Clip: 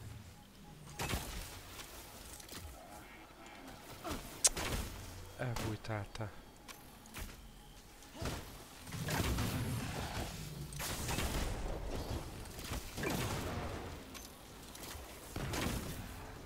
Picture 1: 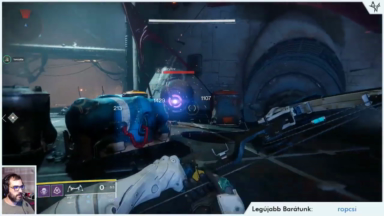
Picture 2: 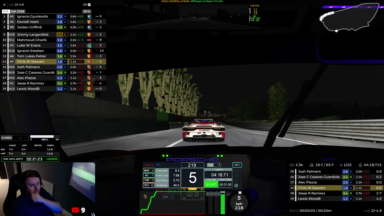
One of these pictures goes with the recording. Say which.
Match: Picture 1